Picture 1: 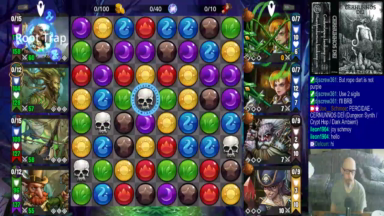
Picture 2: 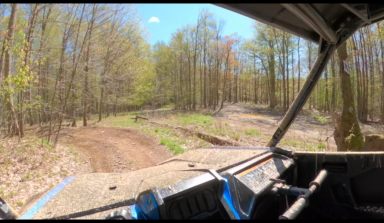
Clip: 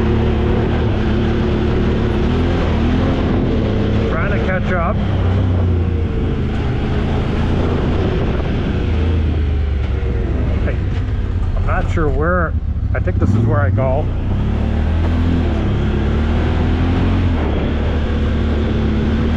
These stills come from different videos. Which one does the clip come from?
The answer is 2